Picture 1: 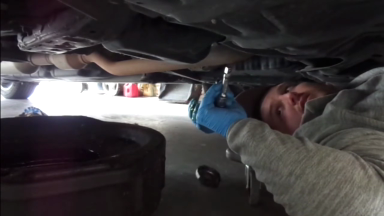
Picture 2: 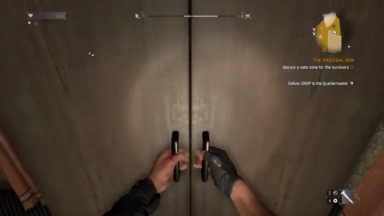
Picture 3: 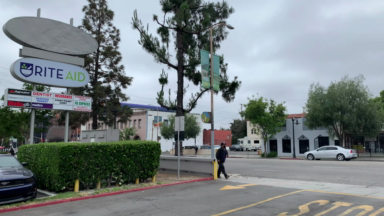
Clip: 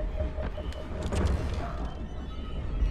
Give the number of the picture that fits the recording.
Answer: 2